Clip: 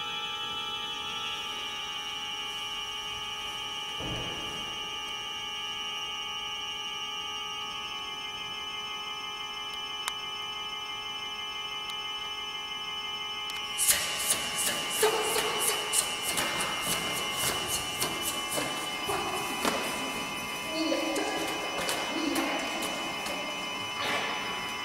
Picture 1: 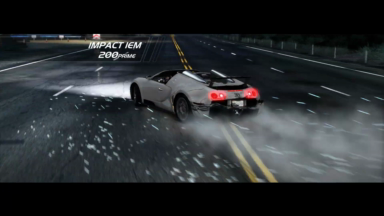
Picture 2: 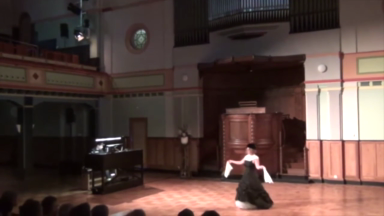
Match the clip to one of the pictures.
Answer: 2